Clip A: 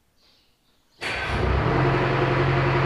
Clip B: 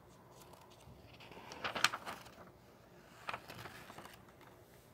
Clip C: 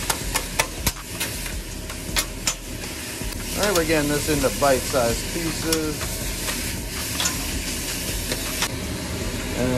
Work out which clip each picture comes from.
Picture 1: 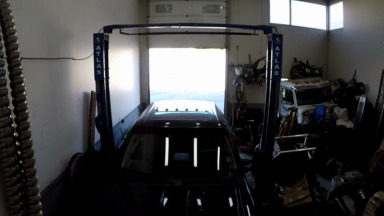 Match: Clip A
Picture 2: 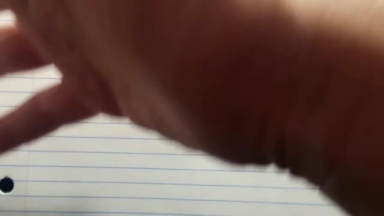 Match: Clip B